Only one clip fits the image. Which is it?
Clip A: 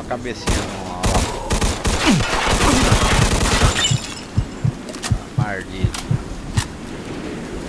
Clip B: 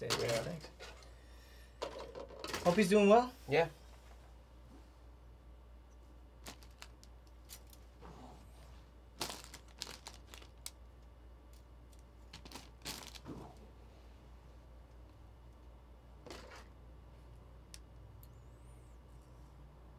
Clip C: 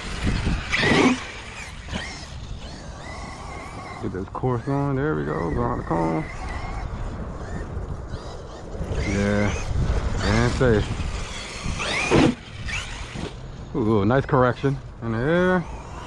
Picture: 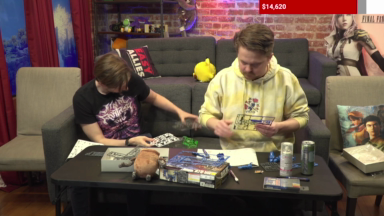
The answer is B